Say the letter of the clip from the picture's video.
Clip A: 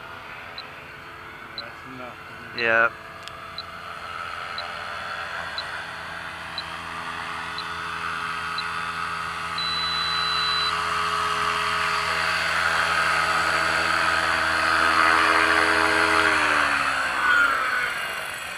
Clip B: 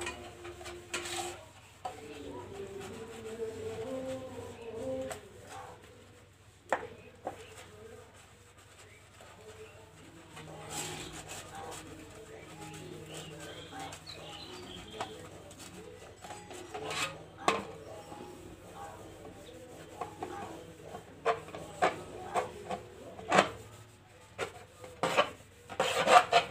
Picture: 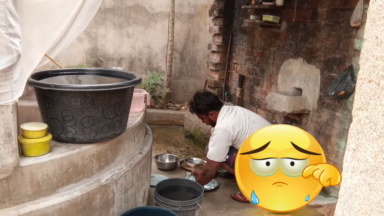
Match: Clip B